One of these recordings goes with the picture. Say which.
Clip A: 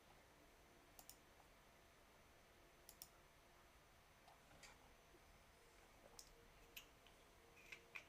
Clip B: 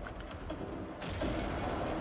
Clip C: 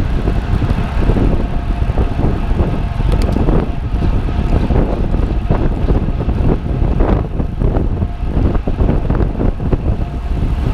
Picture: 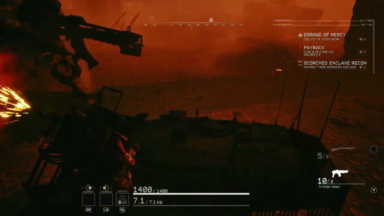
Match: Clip B